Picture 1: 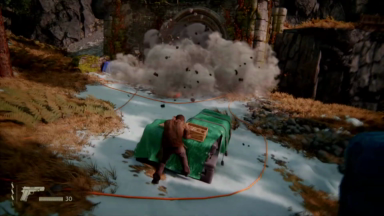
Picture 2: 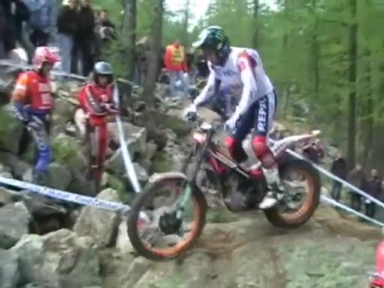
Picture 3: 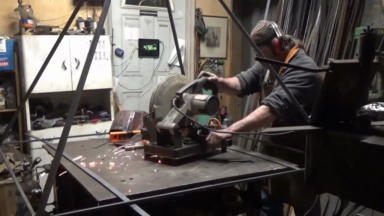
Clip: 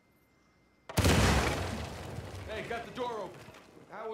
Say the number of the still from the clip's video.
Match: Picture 1